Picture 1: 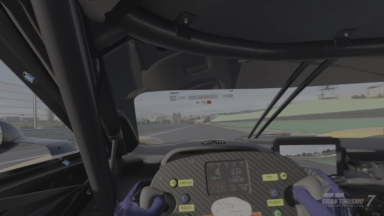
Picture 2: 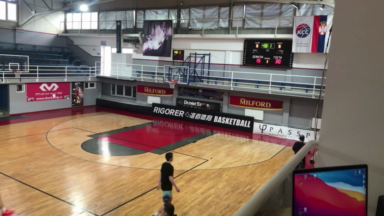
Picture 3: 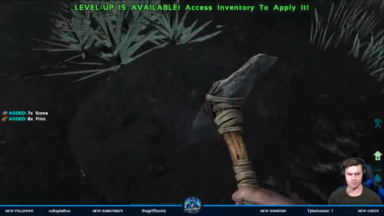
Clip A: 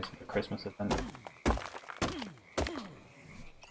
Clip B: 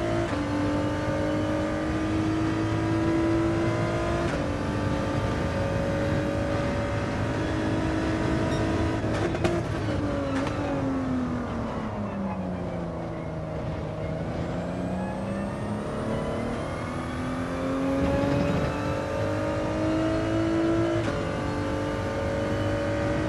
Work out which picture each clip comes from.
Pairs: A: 3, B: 1